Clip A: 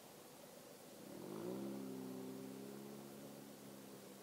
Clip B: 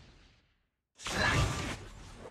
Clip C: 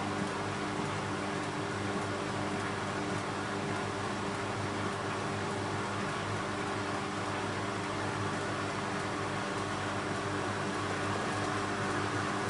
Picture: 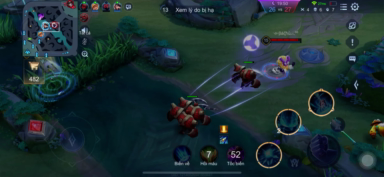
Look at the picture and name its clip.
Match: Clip B